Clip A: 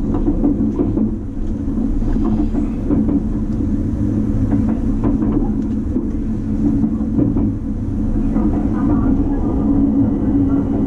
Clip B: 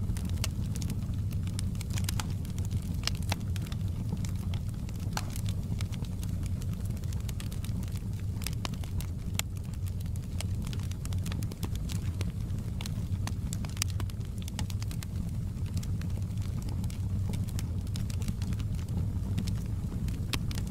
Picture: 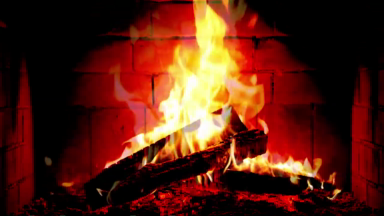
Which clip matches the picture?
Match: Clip B